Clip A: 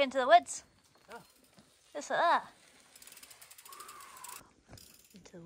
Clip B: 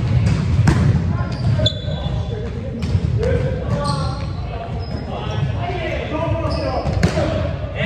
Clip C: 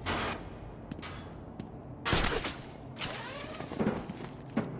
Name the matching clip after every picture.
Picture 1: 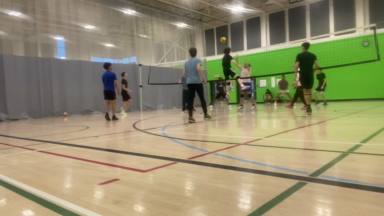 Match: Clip B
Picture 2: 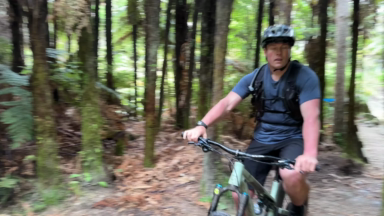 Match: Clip A